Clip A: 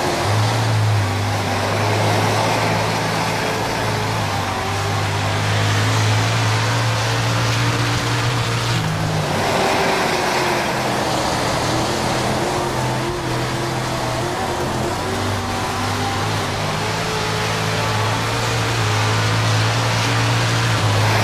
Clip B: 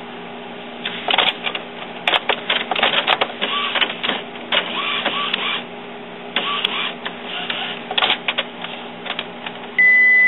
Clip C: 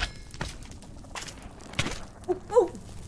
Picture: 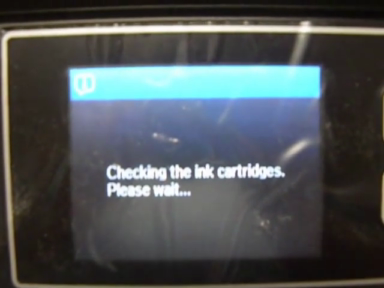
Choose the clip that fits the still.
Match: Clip B